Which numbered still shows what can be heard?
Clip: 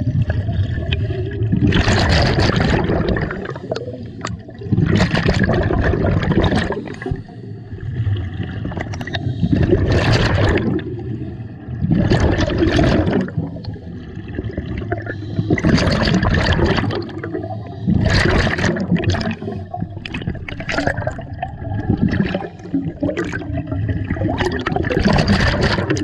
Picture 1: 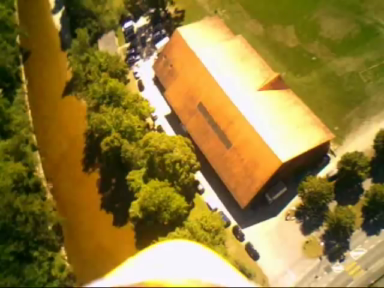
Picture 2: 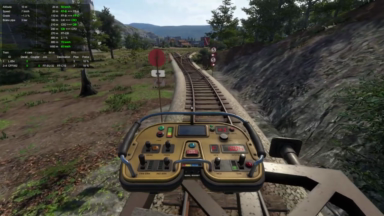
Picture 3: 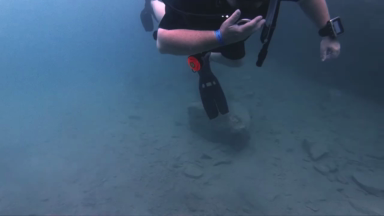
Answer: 3